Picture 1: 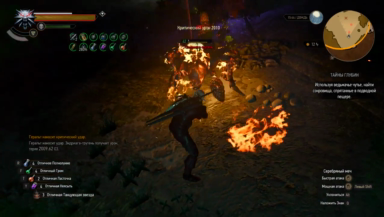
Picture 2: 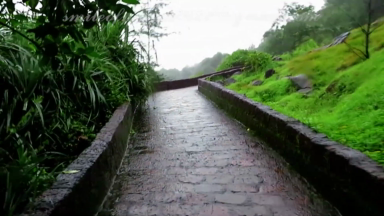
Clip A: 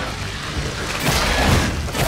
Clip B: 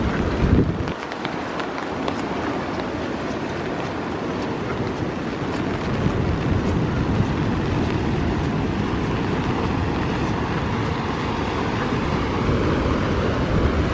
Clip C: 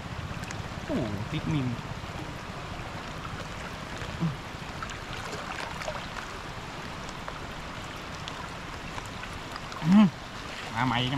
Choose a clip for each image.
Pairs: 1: A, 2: B